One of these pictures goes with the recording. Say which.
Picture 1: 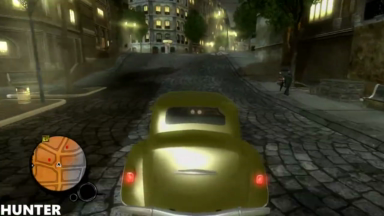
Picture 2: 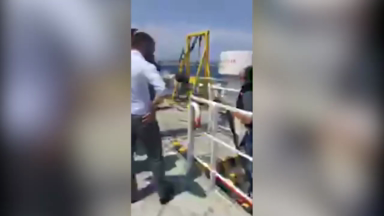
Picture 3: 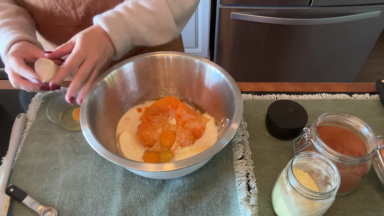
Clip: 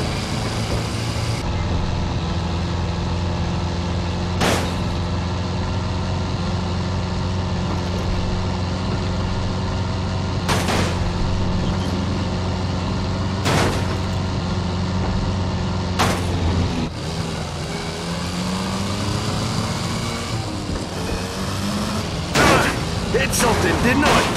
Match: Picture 1